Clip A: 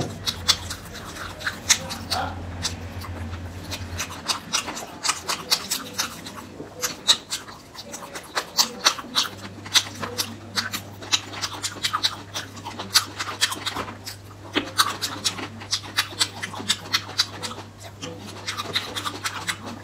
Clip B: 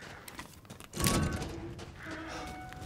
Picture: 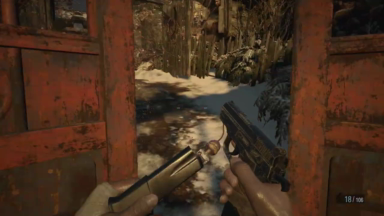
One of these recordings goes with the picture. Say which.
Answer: B